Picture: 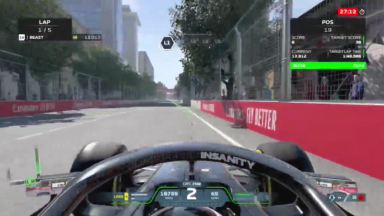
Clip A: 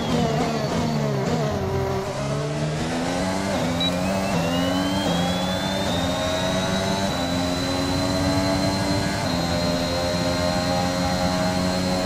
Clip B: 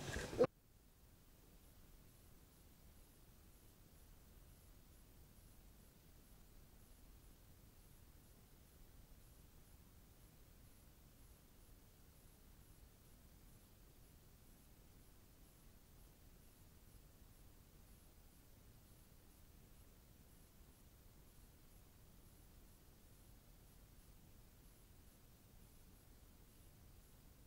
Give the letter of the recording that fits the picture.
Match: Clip A